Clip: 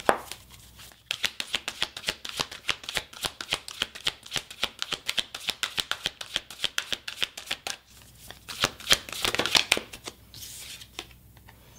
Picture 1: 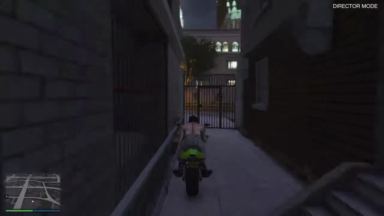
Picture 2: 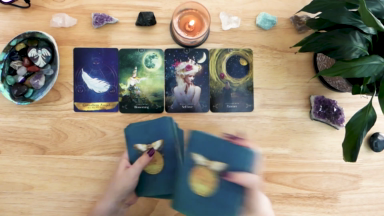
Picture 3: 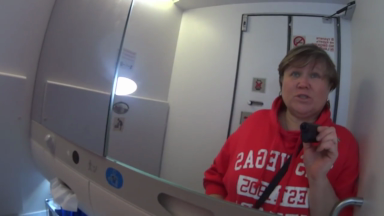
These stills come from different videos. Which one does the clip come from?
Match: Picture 2